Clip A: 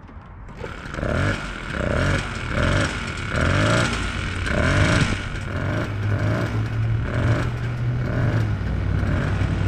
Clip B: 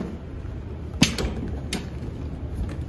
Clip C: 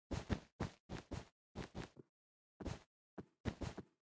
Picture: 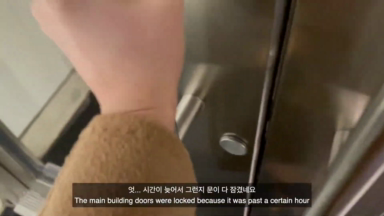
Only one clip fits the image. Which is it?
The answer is B